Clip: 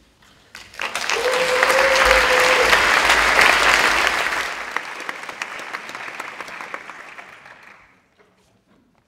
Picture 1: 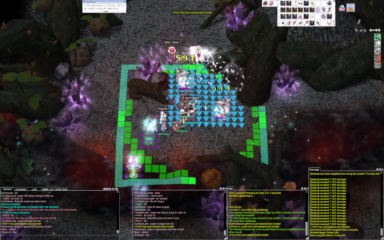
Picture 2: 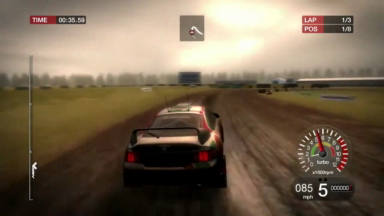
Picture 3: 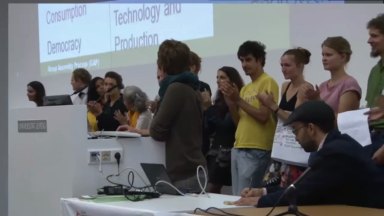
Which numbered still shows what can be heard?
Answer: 3